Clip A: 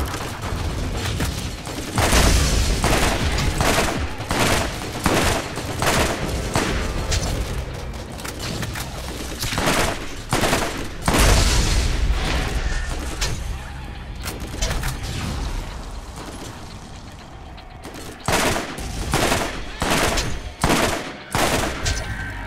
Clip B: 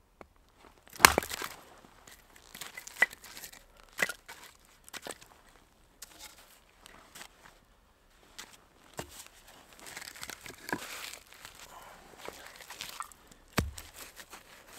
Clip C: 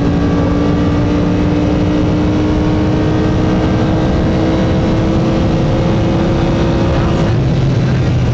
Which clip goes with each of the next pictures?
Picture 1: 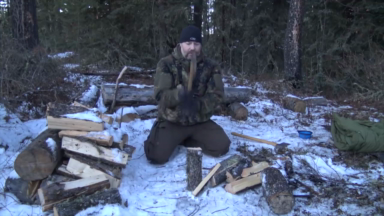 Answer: B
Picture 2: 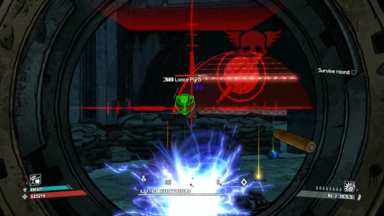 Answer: A